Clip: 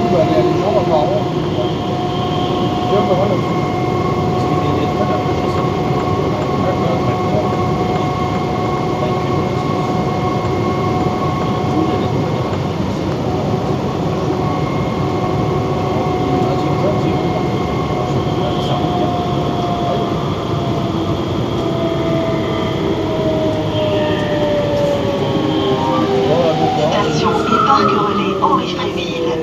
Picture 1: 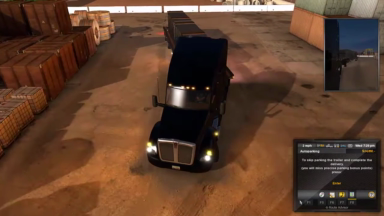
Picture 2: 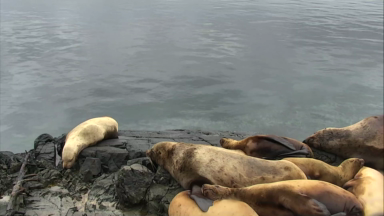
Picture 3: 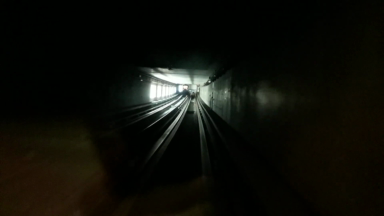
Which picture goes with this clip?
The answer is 3